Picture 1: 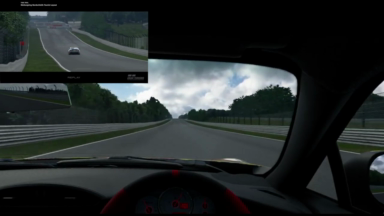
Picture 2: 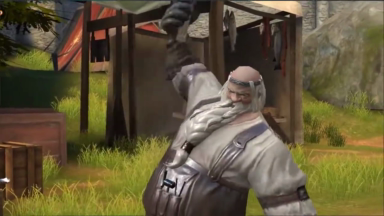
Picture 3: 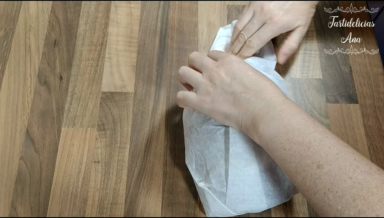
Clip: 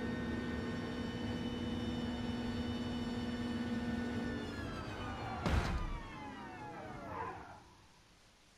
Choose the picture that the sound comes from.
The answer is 1